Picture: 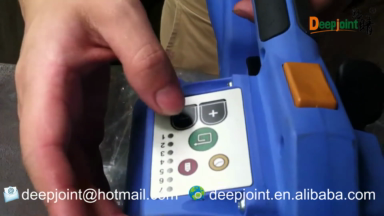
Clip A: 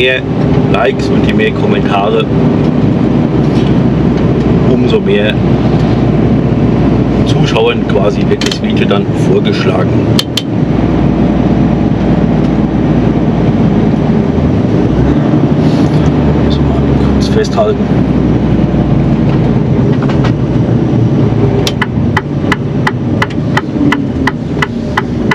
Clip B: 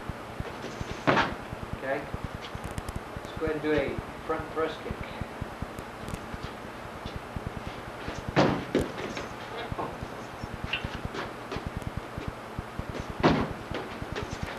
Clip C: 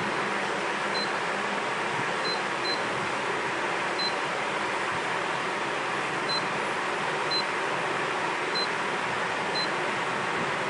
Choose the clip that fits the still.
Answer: C